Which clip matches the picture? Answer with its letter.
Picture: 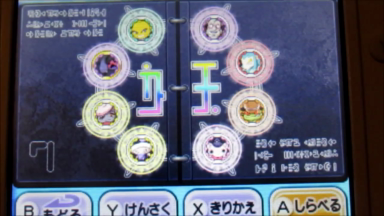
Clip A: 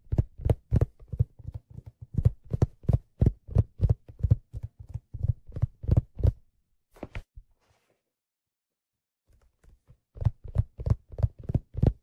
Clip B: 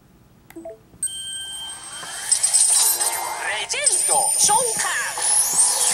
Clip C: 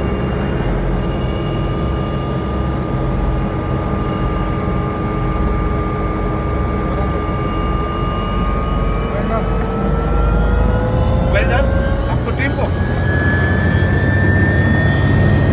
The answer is B